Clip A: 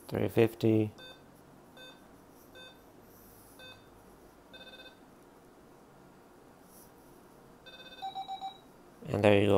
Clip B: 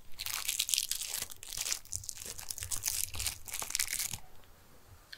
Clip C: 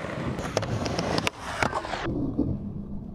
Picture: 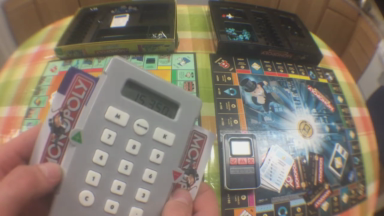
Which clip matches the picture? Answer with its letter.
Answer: A